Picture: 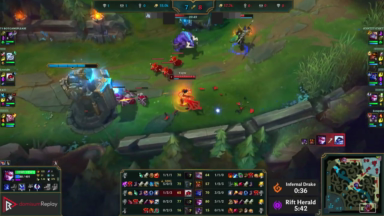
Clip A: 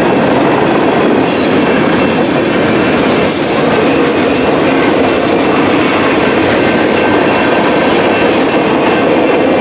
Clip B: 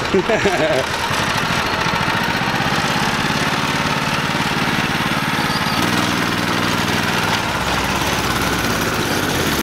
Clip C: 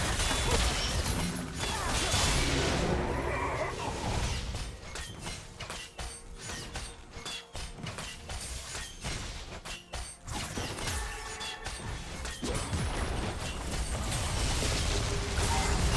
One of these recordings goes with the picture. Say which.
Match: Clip C